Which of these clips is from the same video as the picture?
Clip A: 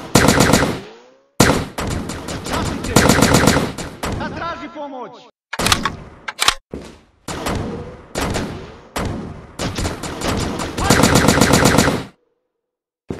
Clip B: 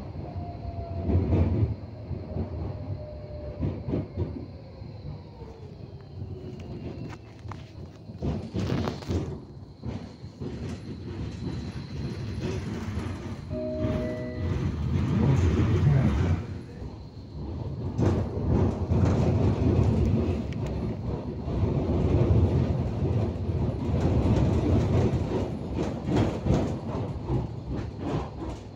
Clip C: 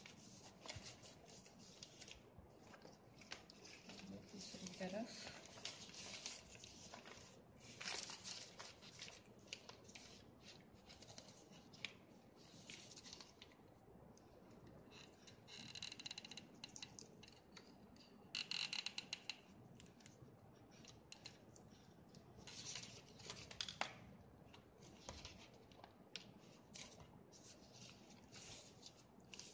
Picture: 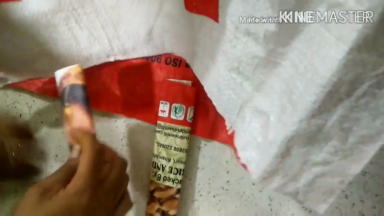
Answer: C